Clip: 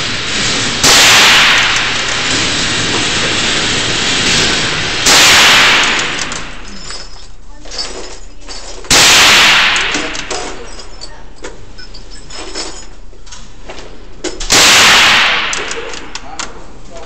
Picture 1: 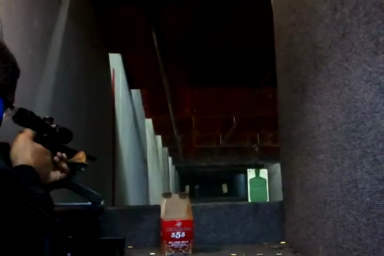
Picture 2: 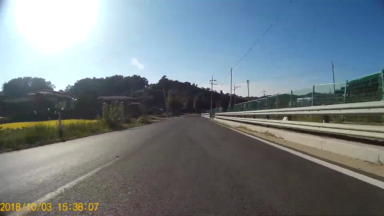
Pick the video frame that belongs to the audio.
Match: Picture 1